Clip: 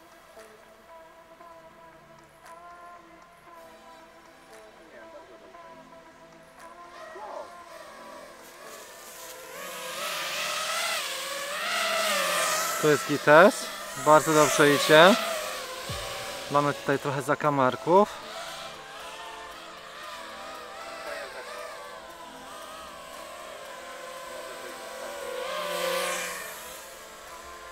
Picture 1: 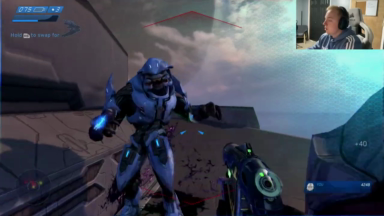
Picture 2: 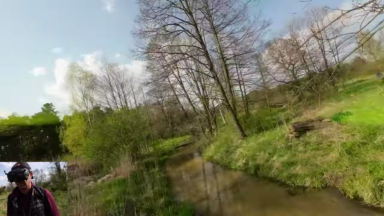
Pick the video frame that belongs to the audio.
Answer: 2